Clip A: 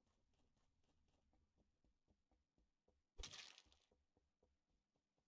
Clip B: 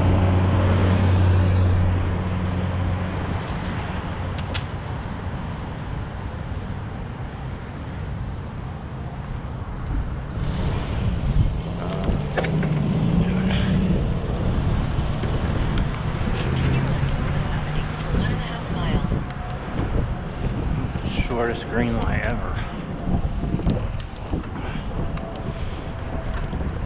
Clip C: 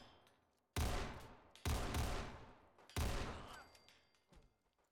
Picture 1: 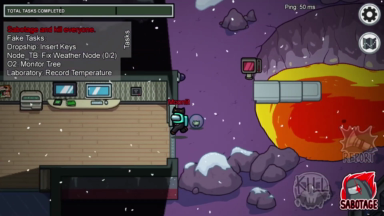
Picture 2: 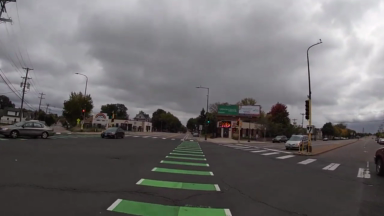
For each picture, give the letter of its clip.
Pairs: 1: A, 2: B